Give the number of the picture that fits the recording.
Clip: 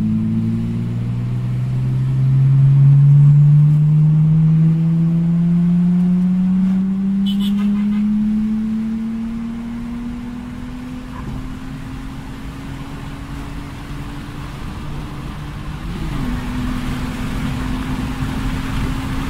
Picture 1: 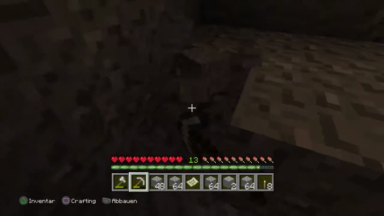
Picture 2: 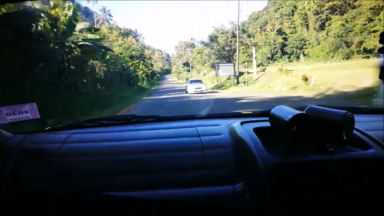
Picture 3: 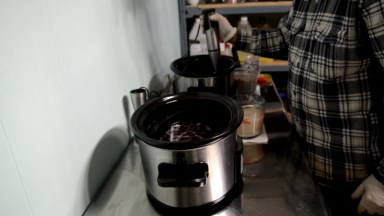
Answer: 2